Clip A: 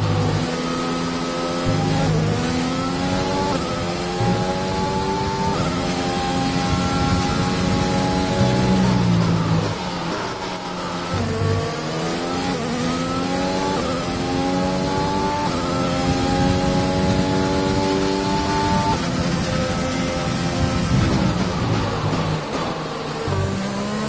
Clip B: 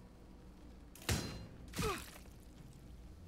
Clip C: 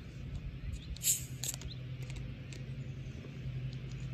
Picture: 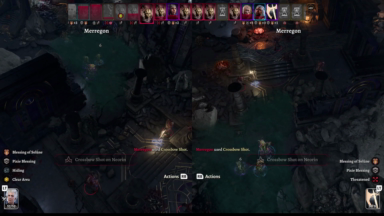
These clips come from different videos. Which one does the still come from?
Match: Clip B